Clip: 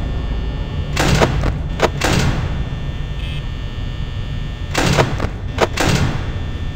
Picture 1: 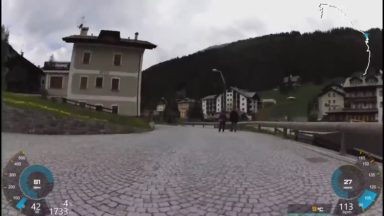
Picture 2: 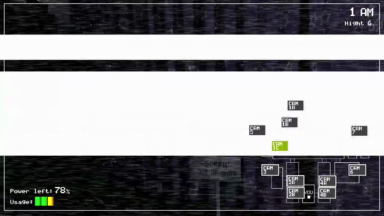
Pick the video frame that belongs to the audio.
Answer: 2